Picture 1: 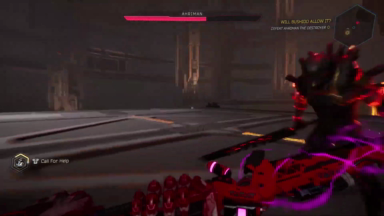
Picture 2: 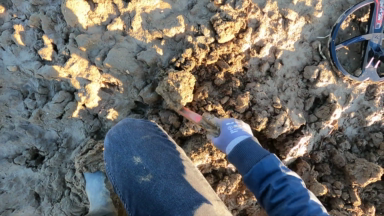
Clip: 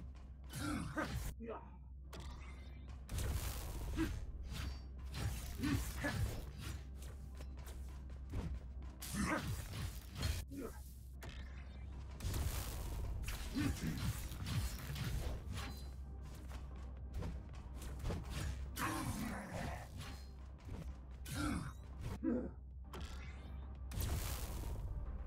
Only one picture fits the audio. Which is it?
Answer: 1